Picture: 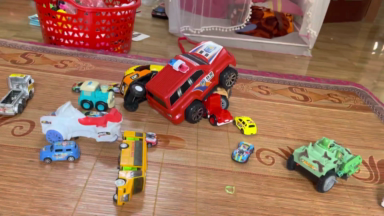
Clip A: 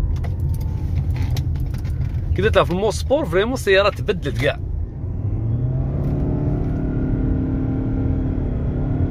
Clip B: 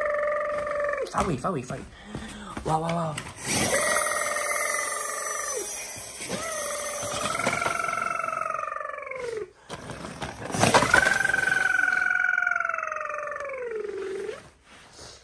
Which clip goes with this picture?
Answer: B